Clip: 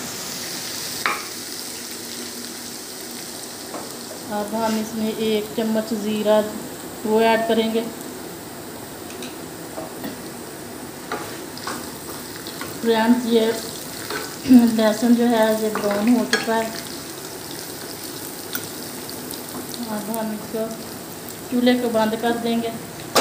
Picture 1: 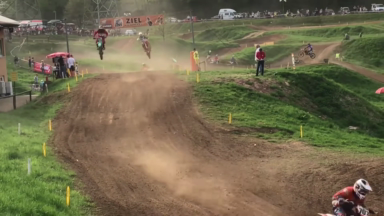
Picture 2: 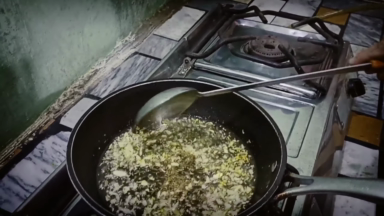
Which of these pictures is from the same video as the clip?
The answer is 2